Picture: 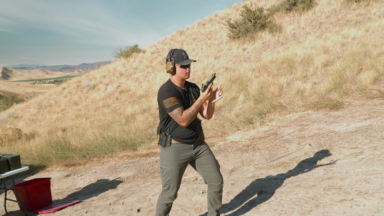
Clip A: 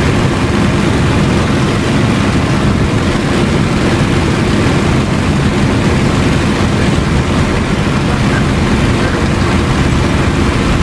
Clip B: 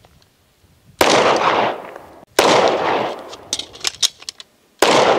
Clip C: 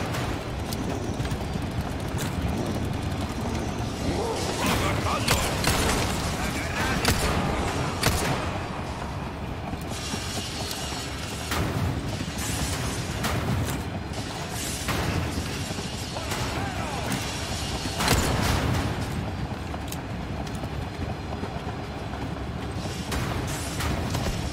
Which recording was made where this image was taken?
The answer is B